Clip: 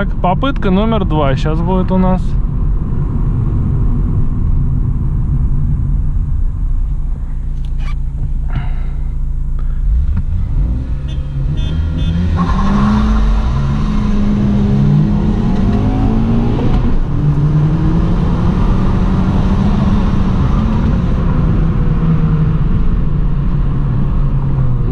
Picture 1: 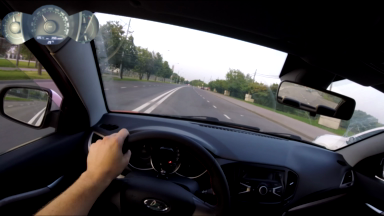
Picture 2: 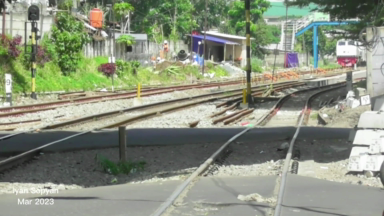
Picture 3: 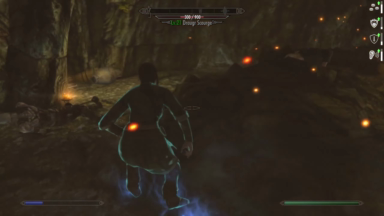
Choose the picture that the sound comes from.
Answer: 1